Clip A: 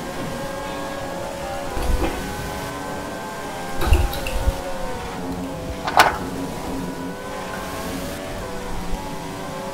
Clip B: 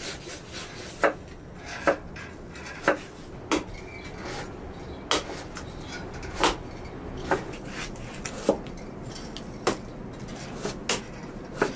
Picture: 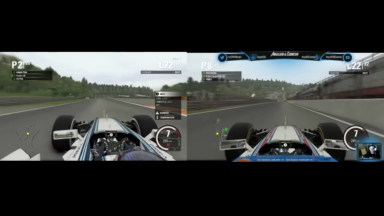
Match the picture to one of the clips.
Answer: A